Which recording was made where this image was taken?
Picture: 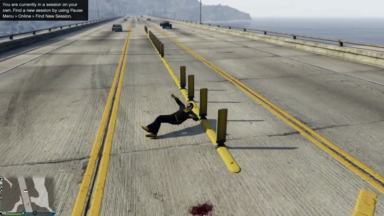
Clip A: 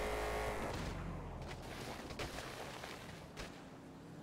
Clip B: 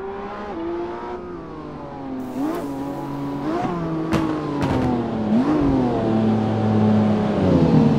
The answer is A